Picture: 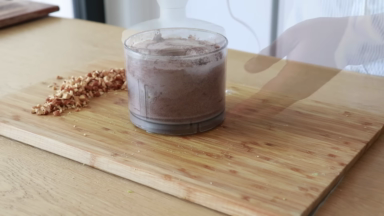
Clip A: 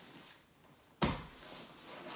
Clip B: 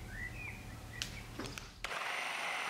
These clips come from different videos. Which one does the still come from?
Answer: B